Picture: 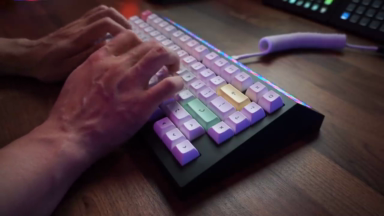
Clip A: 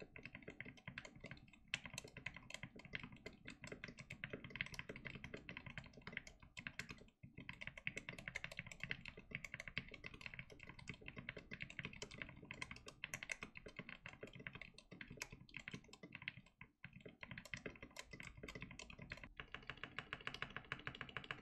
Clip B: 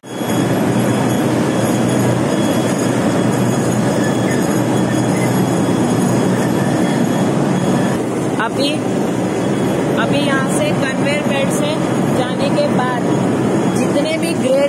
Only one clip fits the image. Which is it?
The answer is A